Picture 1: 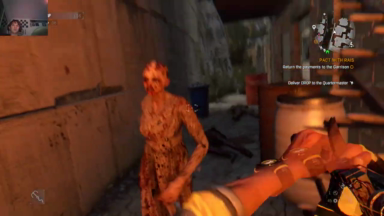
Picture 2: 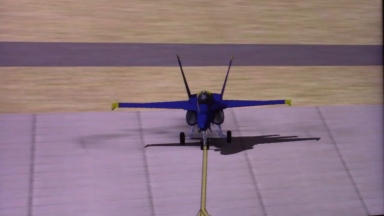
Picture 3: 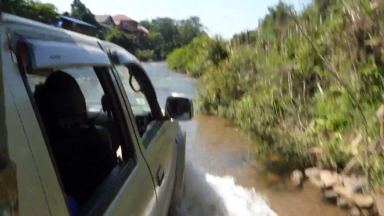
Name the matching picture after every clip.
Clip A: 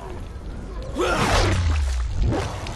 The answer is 1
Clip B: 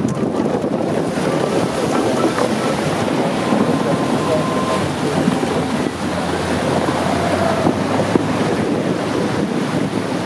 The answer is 3